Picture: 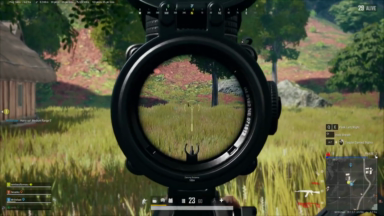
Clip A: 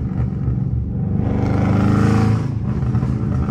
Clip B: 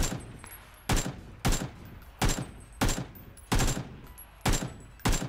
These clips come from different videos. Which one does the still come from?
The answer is B